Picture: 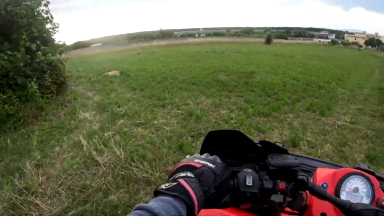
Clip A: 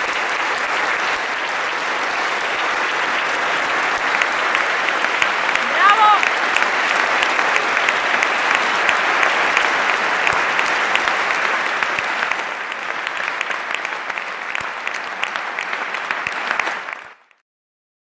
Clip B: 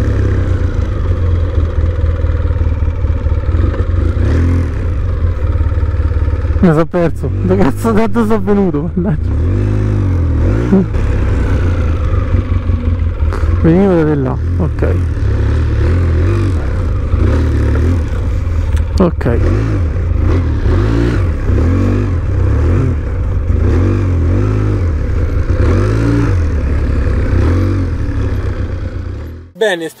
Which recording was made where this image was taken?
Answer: B